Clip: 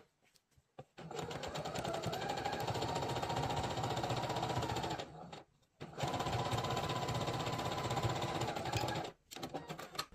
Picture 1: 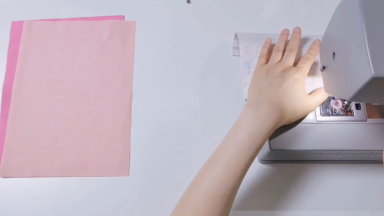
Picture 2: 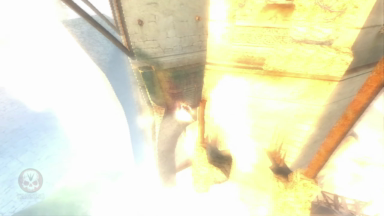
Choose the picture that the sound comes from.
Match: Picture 1